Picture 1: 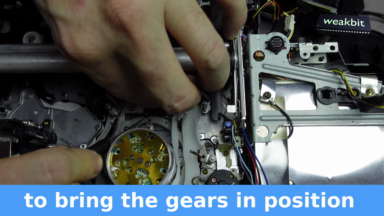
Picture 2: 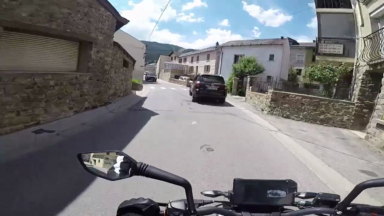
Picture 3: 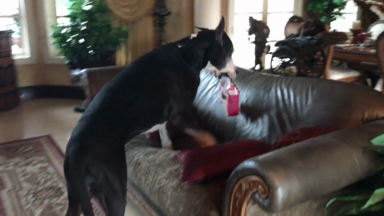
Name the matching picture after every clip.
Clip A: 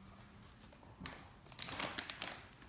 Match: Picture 3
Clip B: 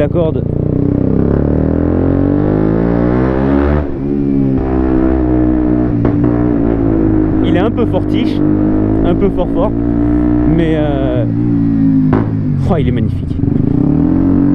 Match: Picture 2